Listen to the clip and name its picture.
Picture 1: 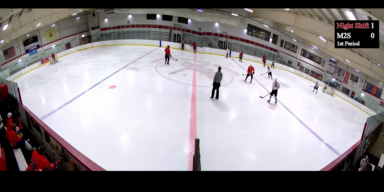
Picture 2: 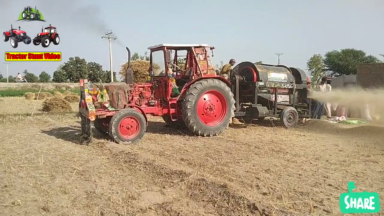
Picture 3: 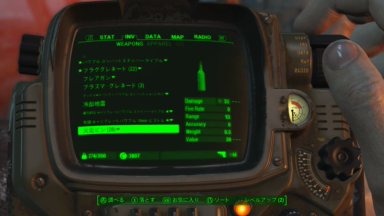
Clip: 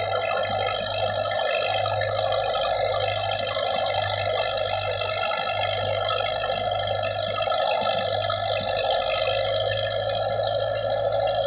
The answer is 2